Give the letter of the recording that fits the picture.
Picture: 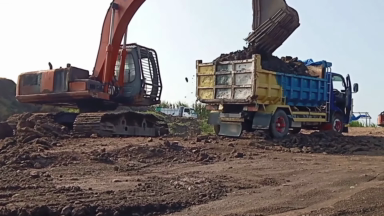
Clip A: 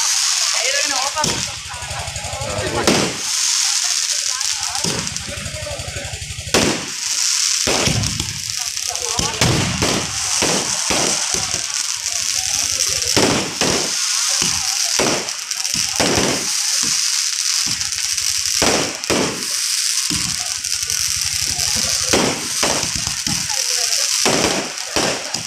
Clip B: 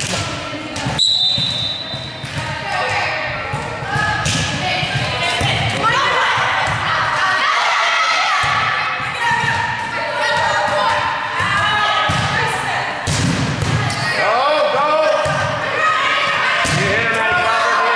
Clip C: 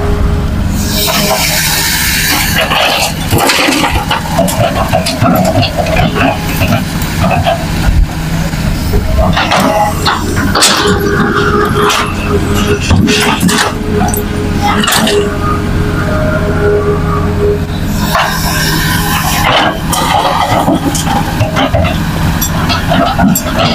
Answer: C